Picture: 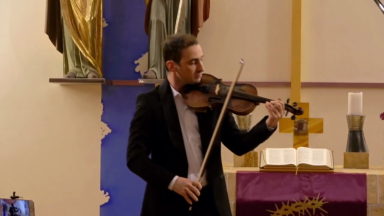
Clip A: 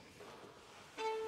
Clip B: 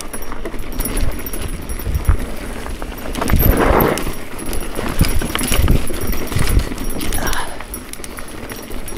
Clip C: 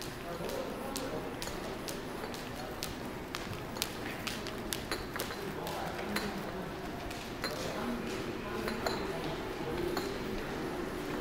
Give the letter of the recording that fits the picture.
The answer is A